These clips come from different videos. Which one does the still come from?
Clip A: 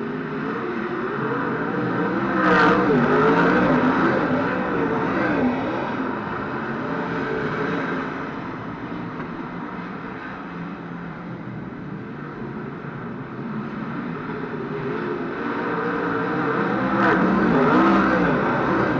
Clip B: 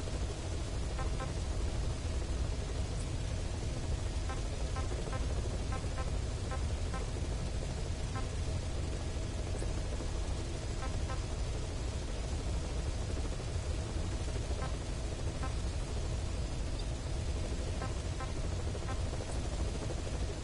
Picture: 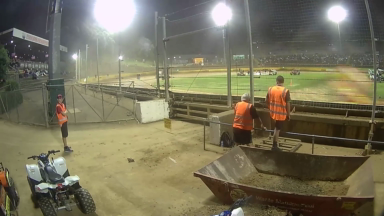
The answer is A